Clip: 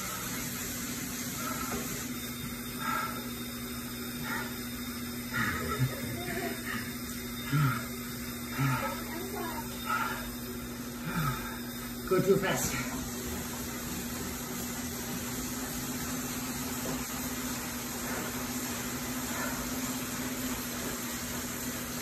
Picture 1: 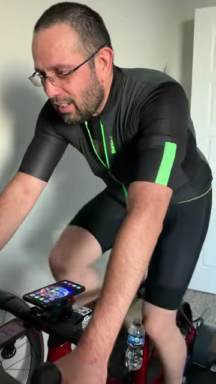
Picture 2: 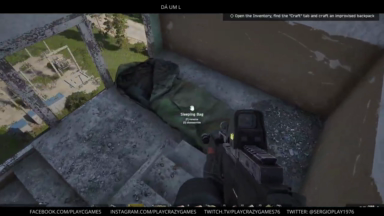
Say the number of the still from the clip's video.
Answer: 1